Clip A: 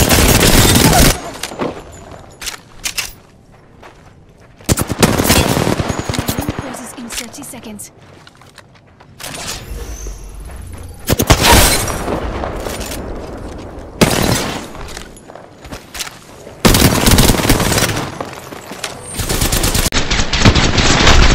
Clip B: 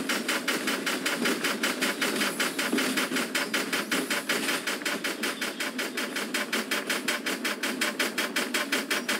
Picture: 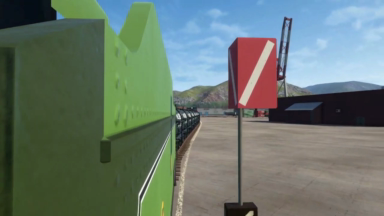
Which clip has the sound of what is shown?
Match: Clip B